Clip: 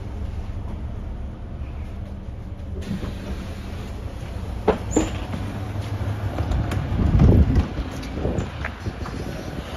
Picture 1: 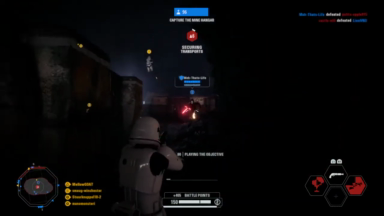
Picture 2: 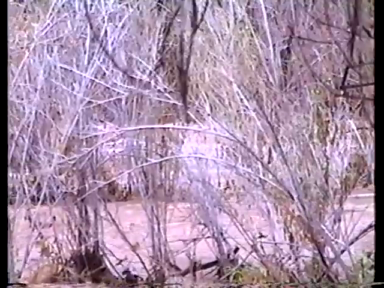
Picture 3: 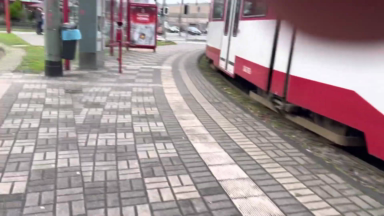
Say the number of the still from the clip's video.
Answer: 3